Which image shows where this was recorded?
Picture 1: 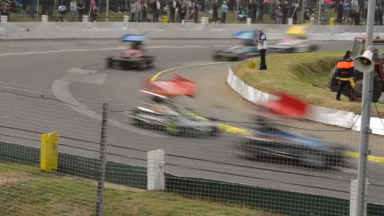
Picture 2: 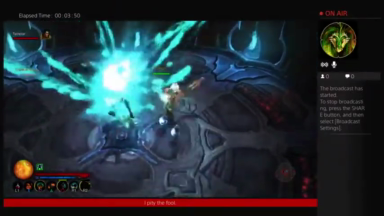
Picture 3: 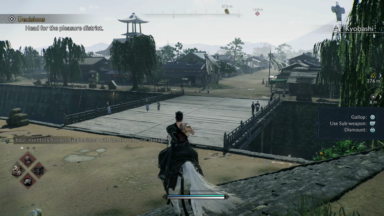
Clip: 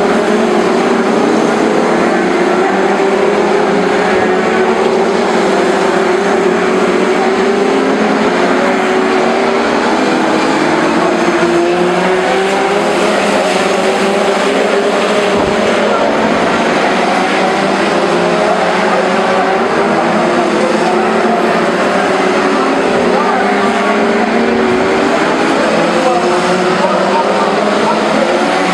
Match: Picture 1